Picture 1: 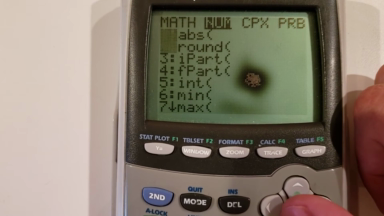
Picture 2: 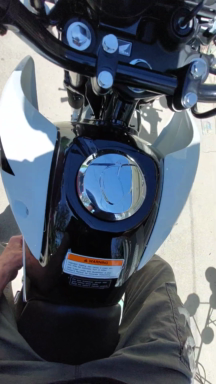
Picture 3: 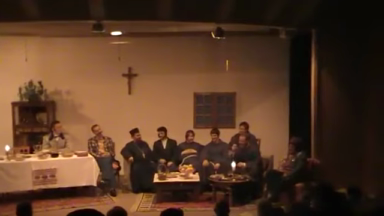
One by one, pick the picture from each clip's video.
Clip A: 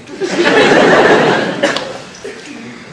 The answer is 3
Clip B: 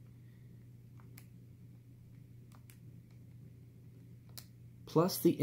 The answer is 1